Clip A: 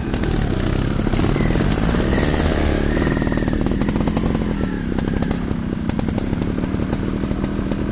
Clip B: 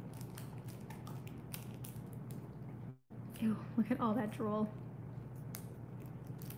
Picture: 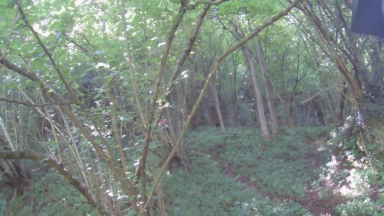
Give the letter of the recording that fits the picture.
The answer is A